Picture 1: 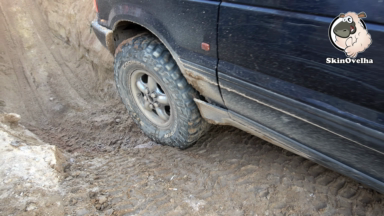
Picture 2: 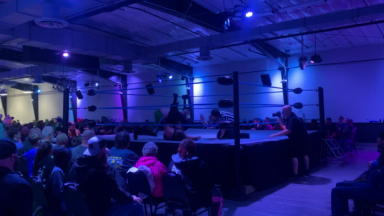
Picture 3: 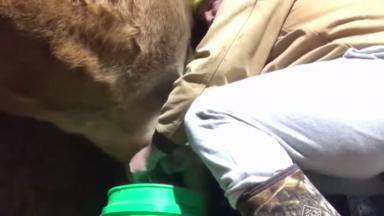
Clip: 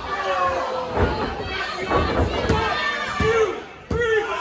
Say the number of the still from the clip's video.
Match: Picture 2